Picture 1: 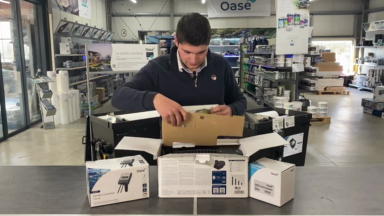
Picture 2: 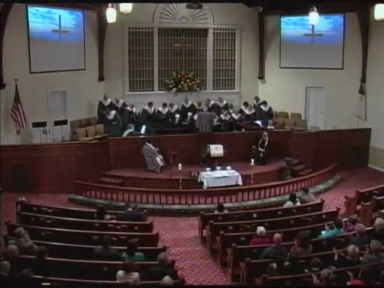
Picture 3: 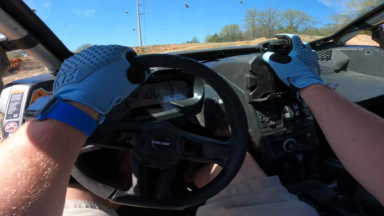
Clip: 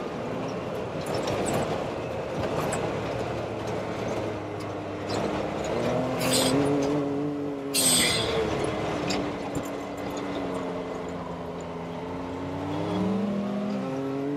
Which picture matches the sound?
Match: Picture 3